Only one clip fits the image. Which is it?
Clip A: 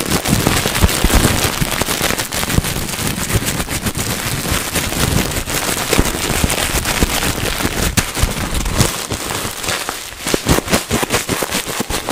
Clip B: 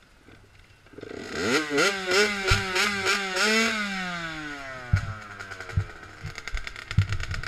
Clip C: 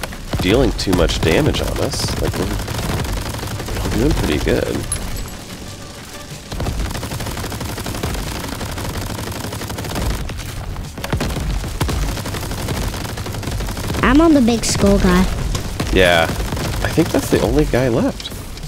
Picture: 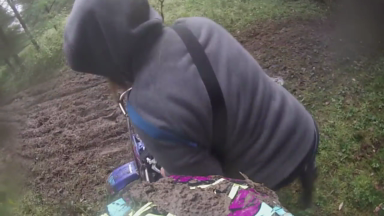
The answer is B